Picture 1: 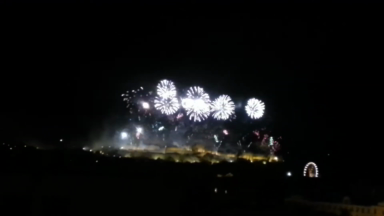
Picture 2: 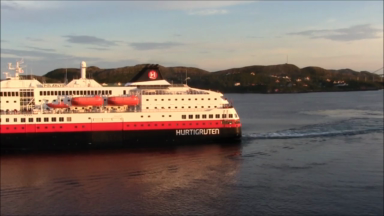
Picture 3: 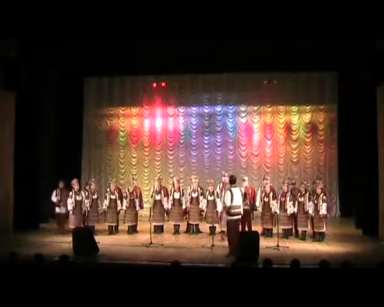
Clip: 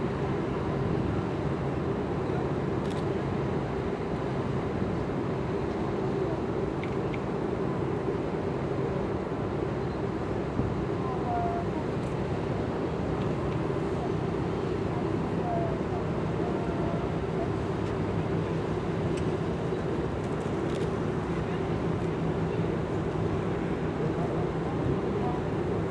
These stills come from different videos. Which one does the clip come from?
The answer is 2